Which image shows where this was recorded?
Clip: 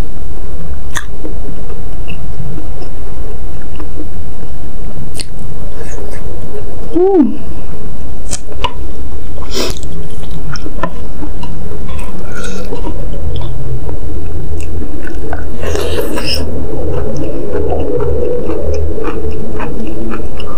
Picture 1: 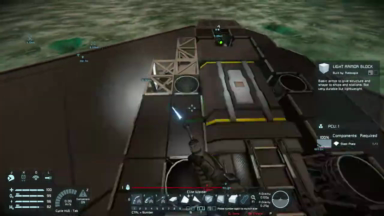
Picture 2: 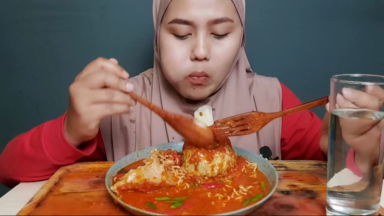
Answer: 2